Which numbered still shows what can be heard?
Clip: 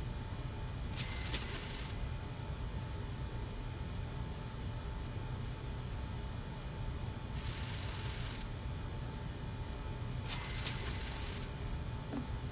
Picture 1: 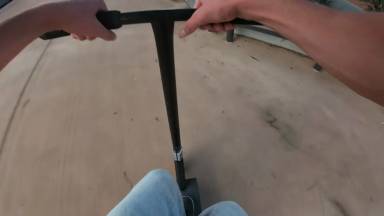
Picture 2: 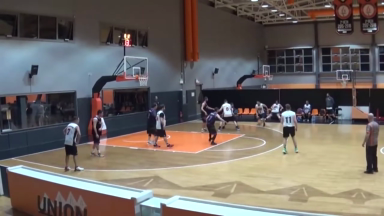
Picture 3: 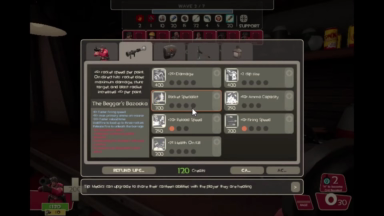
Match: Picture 3